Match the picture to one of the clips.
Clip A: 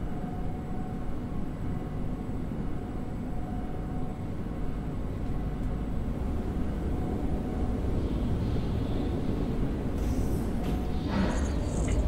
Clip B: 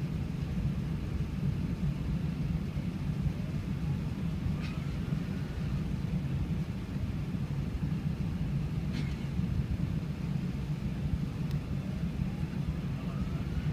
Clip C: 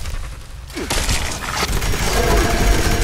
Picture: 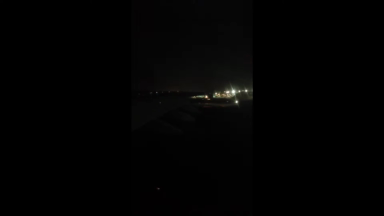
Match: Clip B